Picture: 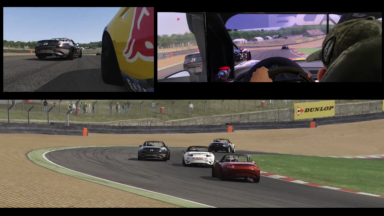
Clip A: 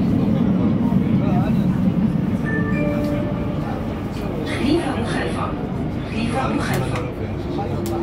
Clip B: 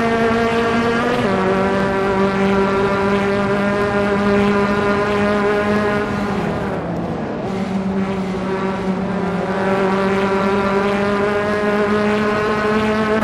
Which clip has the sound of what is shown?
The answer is B